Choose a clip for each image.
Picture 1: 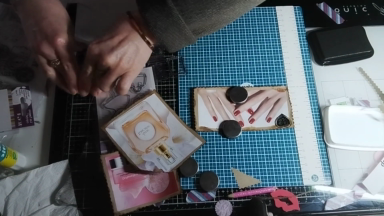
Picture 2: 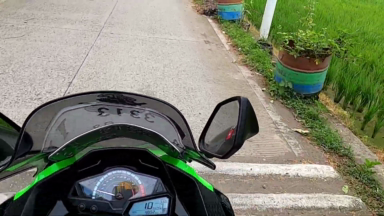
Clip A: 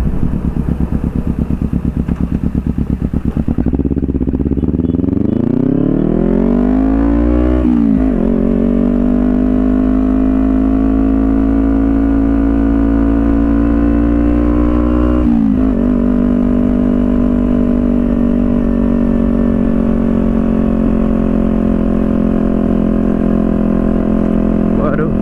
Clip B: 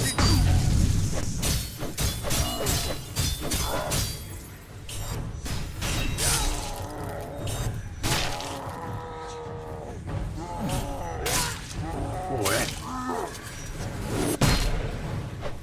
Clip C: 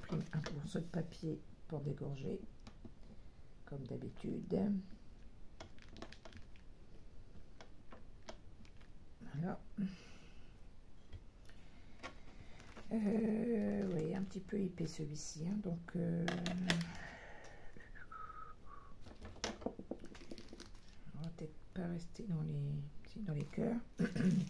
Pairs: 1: C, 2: A